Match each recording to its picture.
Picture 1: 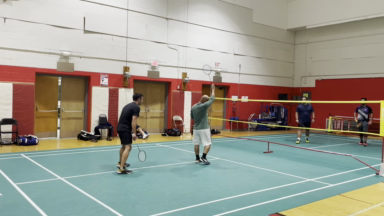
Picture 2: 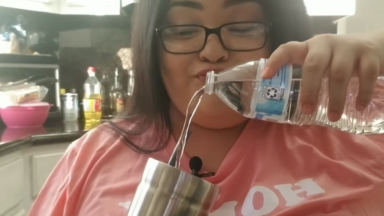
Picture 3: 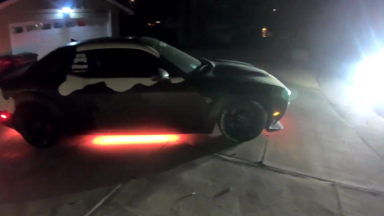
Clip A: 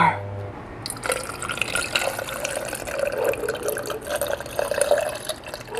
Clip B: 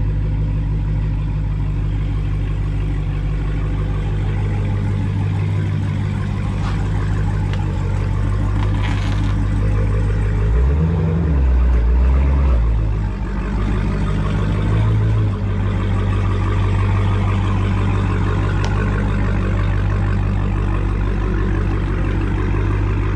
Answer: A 2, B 3